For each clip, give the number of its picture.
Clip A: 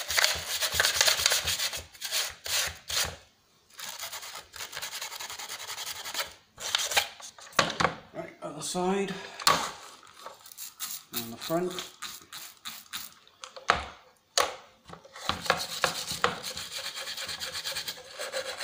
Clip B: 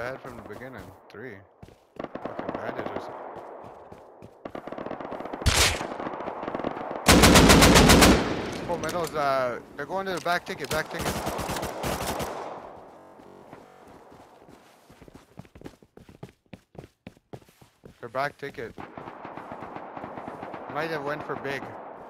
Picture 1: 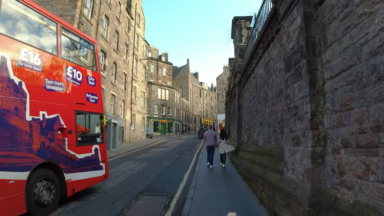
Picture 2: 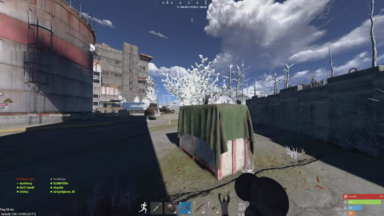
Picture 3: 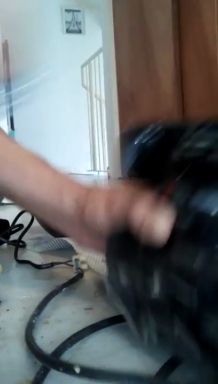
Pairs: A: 3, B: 2